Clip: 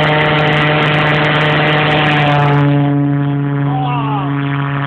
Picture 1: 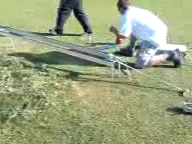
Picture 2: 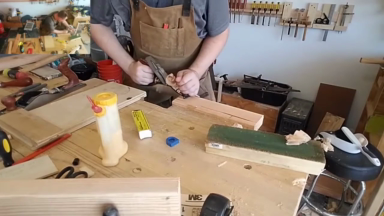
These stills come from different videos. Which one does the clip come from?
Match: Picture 1